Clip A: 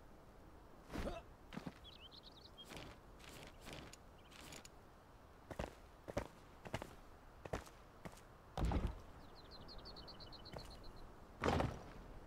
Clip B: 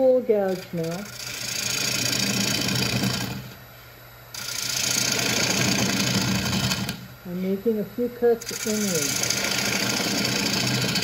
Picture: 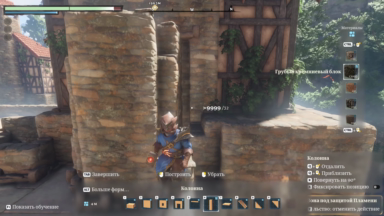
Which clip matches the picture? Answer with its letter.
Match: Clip A